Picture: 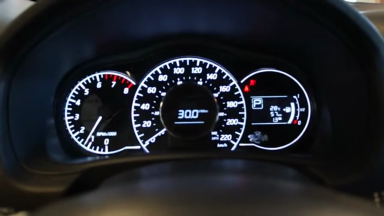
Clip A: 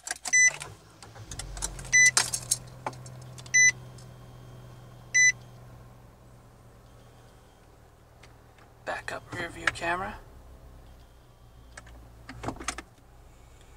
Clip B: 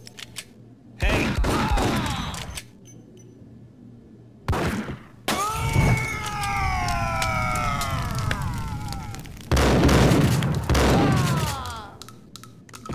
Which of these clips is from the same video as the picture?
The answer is A